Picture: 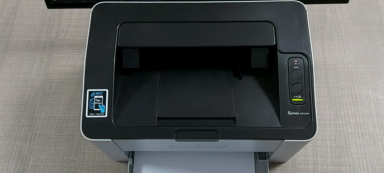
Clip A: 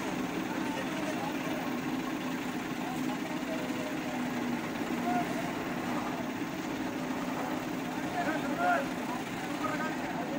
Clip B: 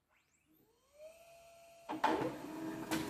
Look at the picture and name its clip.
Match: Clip B